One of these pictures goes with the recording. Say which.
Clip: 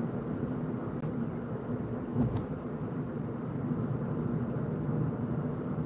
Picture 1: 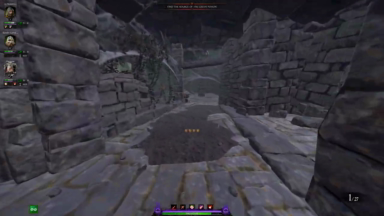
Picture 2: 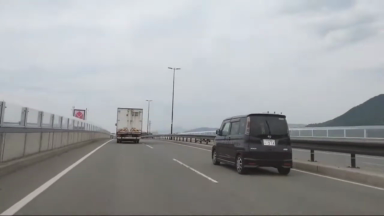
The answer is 2